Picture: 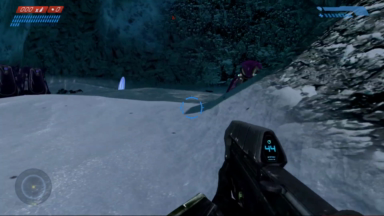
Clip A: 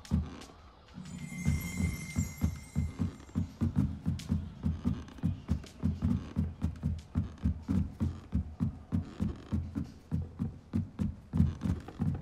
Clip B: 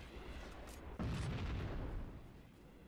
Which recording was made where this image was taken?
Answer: B